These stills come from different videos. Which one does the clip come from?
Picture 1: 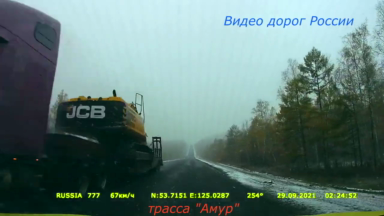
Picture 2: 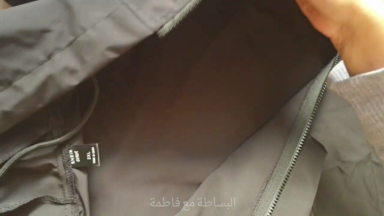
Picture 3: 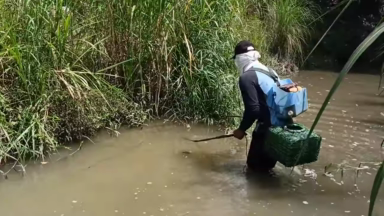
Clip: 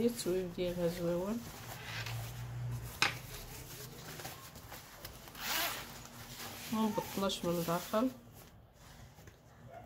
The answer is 2